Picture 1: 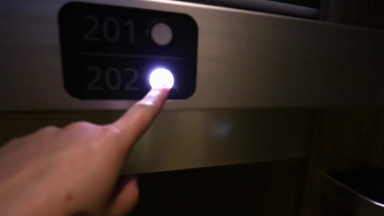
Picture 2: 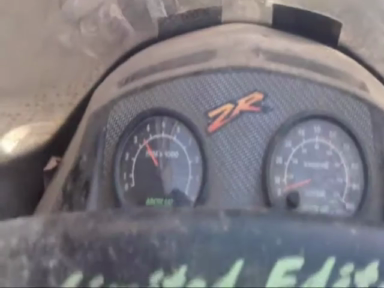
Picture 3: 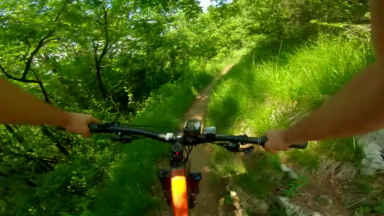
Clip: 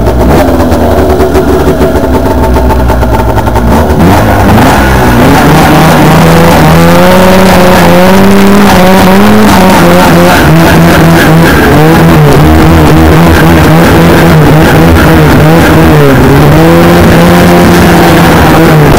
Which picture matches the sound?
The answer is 2